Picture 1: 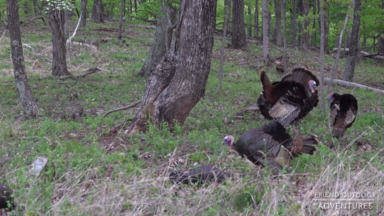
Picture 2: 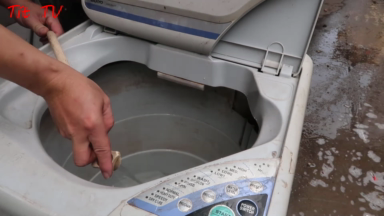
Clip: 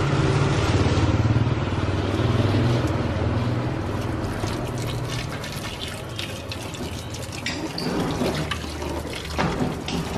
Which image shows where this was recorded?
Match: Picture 2